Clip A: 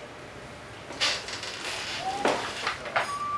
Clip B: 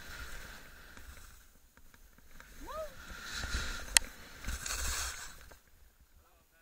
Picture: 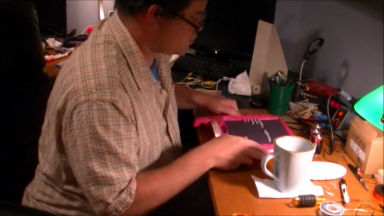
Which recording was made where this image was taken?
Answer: A